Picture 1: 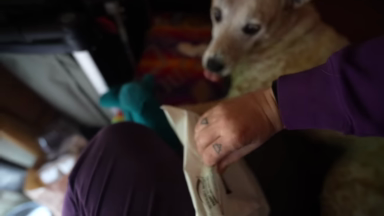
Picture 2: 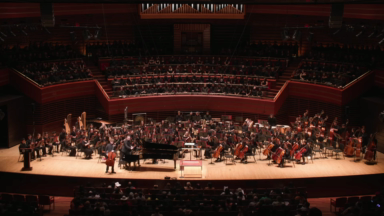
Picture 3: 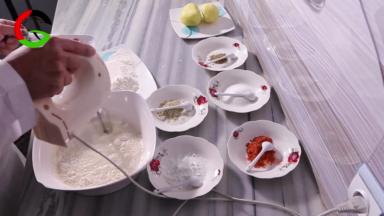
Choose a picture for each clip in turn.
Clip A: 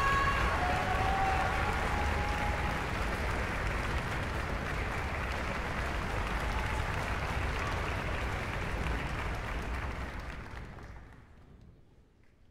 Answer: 2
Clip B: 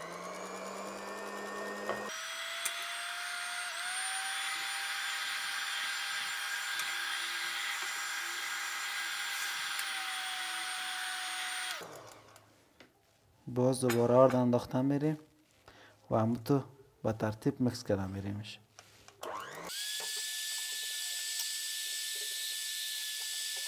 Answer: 3